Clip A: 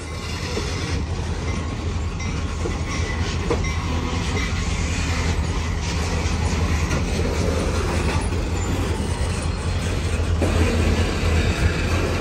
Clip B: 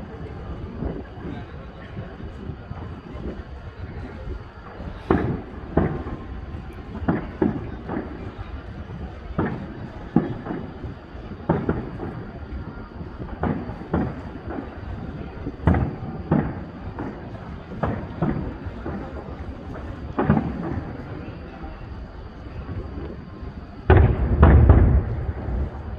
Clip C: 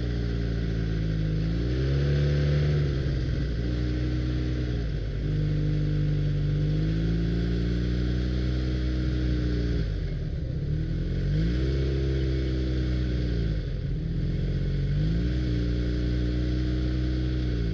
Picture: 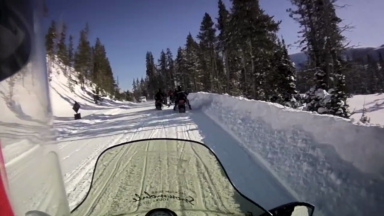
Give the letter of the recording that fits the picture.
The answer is C